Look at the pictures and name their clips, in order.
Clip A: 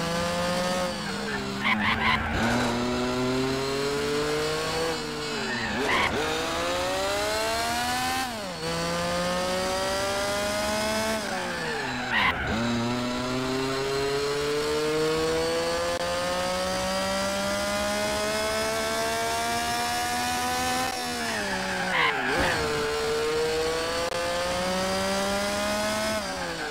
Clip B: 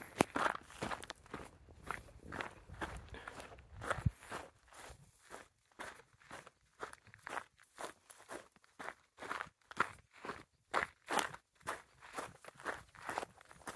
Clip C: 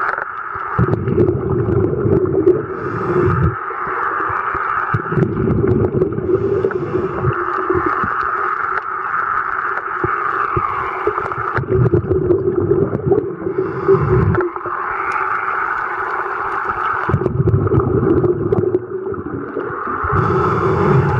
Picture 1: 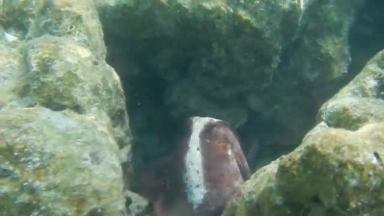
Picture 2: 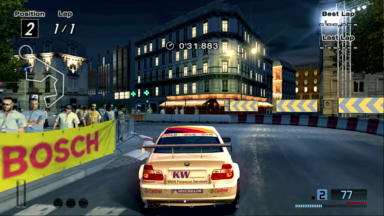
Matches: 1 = C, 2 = A